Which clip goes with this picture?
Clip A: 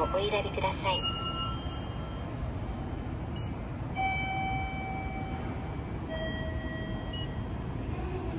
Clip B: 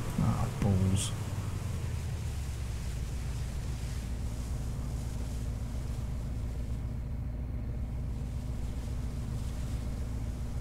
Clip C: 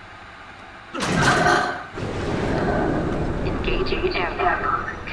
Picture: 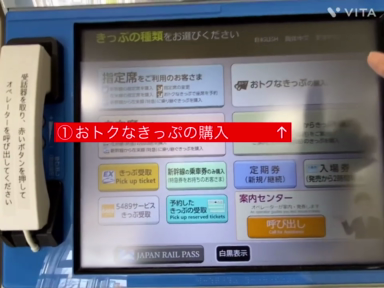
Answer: A